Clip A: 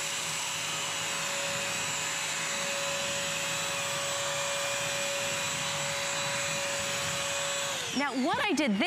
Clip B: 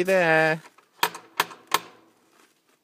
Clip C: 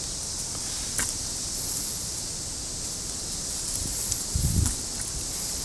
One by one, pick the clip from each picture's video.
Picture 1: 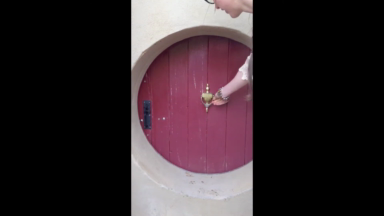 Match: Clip B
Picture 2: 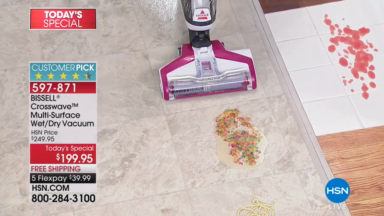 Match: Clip A